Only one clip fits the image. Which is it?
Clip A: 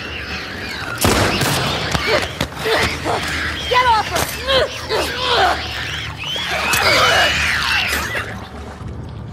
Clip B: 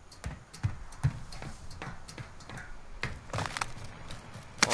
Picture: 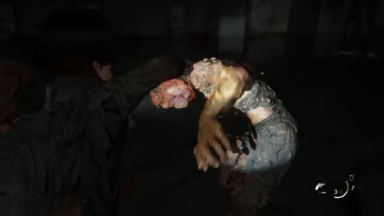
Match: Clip A